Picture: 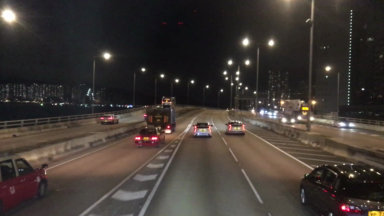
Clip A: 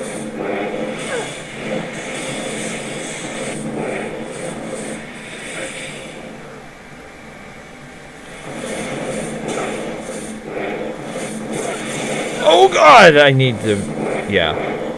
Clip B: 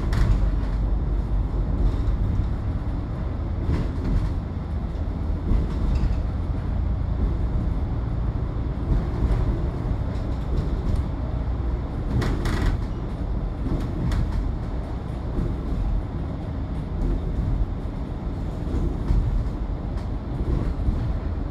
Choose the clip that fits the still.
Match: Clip B